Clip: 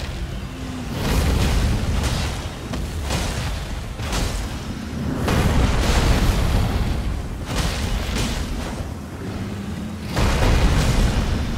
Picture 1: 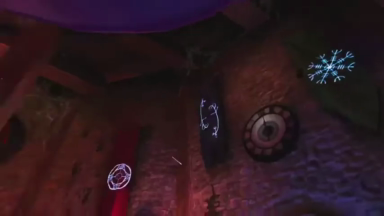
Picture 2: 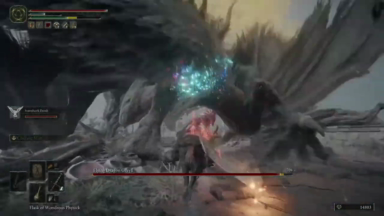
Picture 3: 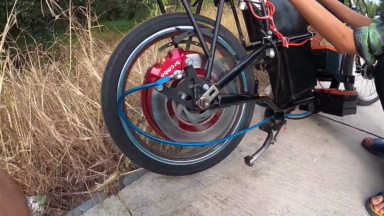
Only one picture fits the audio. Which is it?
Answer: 2